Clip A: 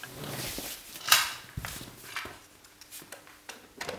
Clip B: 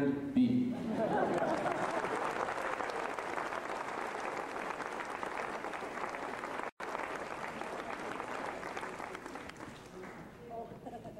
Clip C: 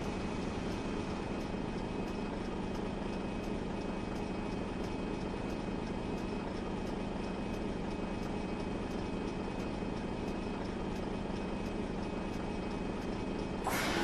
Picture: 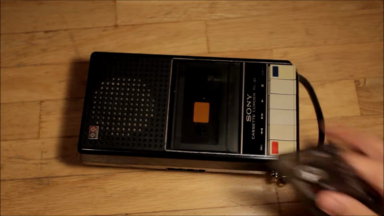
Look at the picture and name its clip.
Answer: A